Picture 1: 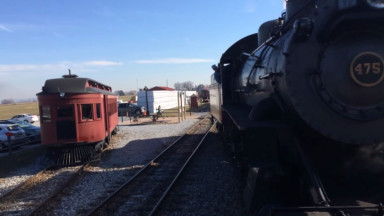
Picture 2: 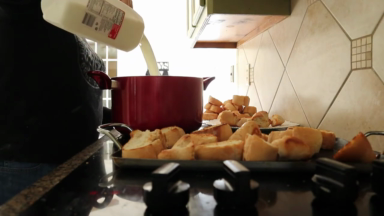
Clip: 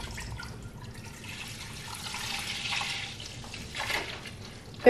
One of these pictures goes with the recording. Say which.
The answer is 2